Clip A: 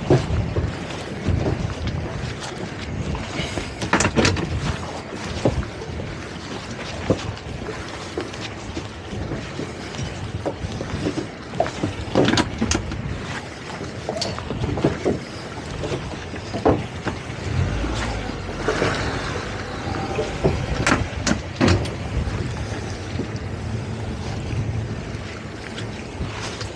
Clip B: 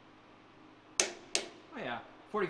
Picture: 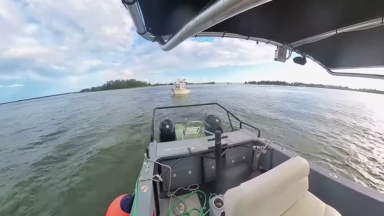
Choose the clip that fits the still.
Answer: A